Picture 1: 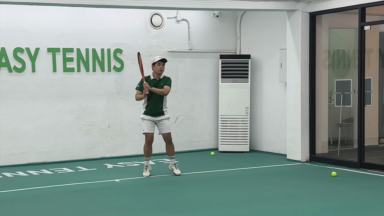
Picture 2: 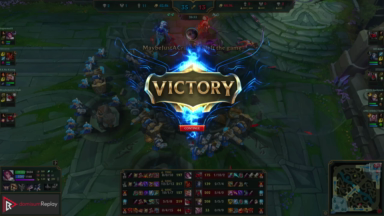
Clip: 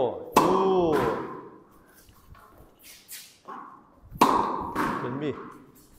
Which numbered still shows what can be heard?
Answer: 1